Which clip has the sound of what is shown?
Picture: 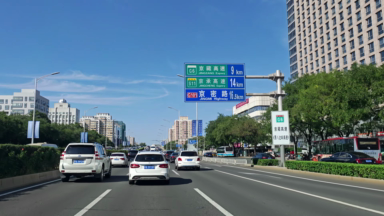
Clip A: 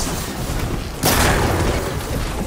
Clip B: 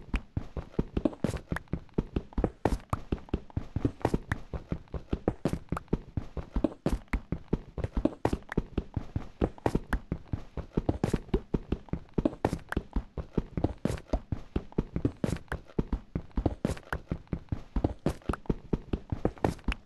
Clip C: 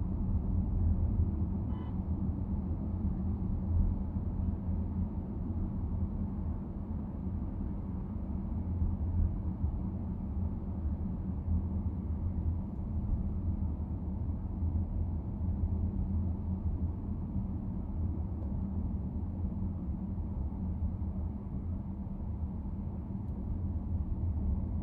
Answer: C